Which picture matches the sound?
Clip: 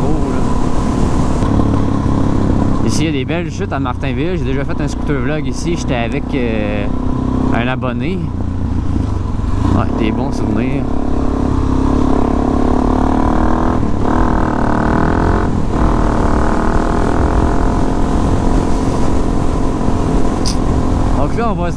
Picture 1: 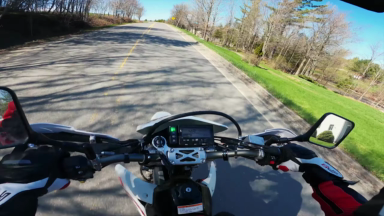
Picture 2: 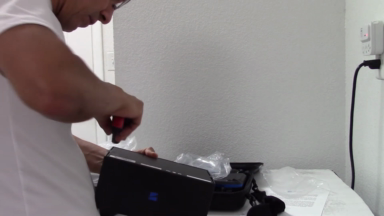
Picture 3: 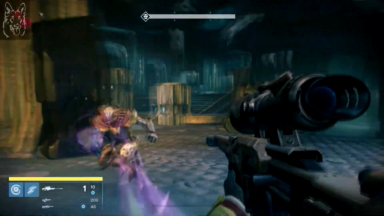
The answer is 1